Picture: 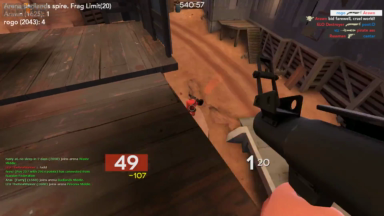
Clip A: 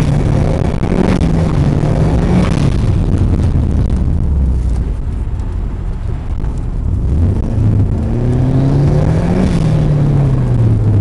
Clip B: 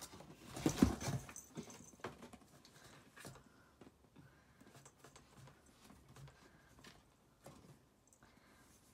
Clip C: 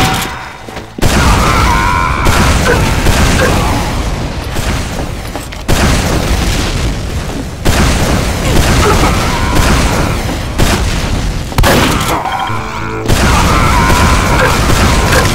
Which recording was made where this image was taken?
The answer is C